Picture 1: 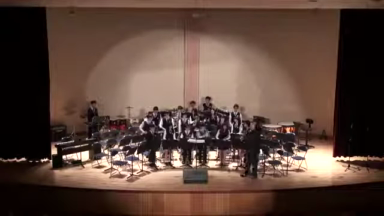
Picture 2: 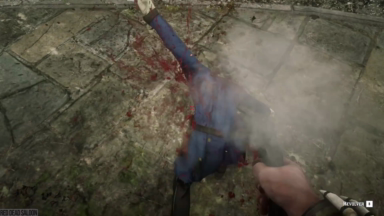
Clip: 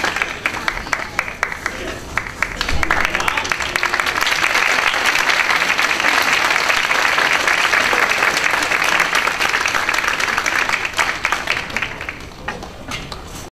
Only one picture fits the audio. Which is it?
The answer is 1